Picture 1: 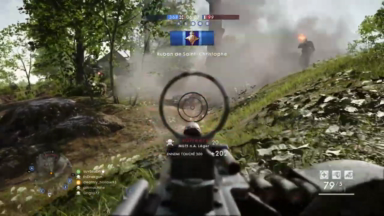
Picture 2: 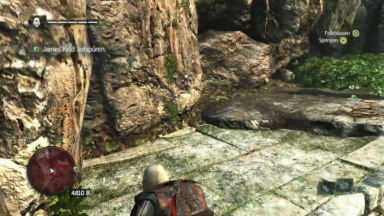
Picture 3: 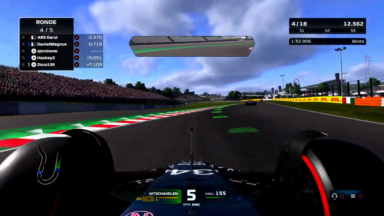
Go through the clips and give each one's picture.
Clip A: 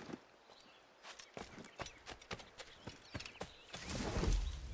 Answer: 2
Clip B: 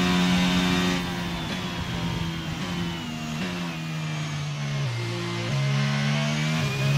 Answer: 3